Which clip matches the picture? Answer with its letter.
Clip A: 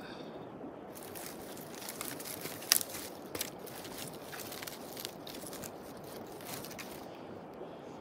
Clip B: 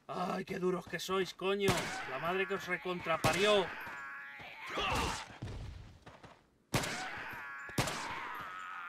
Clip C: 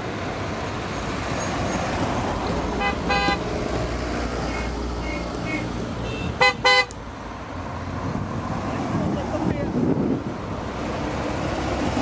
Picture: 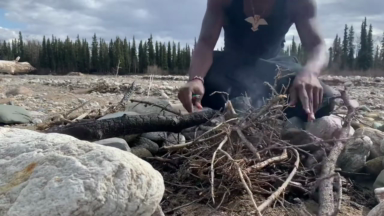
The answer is A